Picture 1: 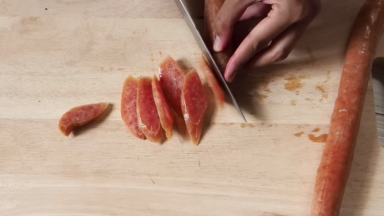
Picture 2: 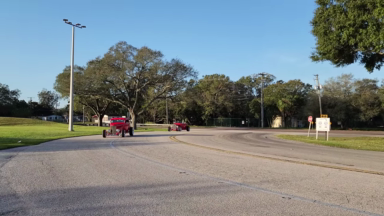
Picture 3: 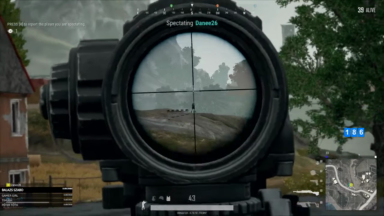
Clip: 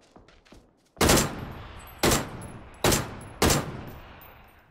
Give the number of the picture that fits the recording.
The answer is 3